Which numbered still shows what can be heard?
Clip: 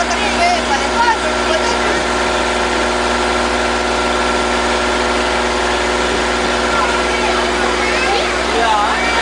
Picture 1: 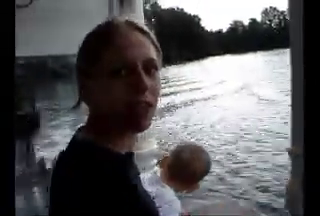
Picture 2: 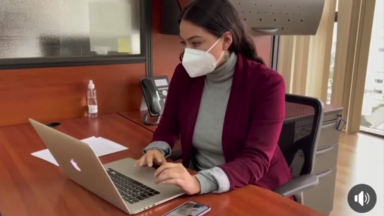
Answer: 1